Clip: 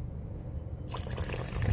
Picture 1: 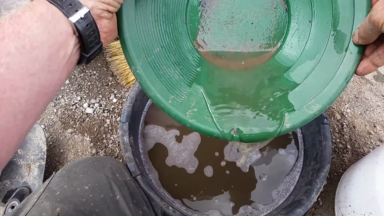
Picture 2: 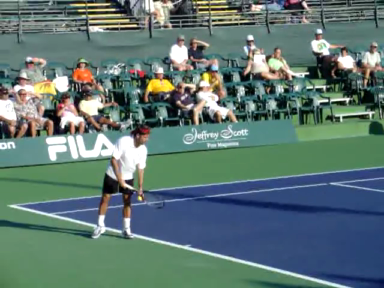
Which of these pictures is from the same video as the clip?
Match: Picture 1